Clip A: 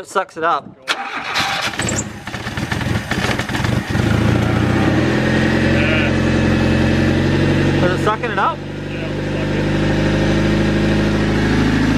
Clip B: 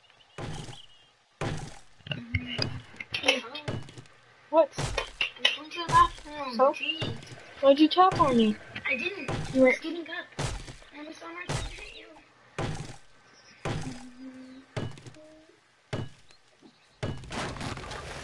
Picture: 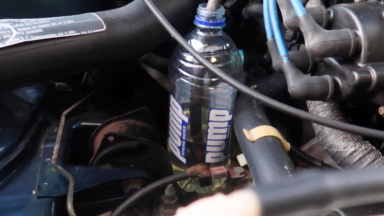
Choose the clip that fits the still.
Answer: A